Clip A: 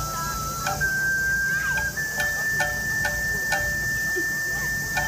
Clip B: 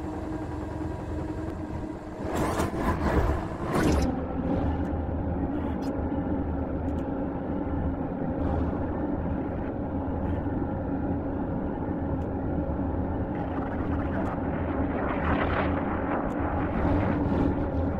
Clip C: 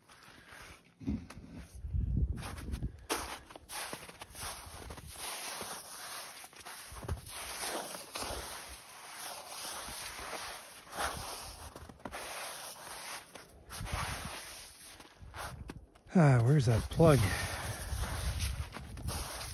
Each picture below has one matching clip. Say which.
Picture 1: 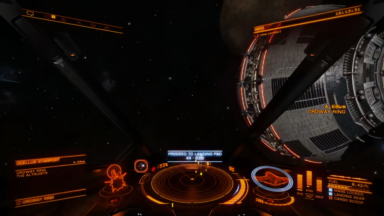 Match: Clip B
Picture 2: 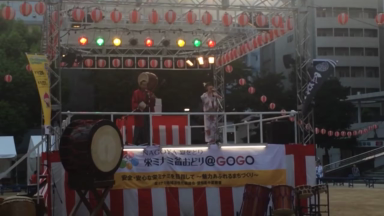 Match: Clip A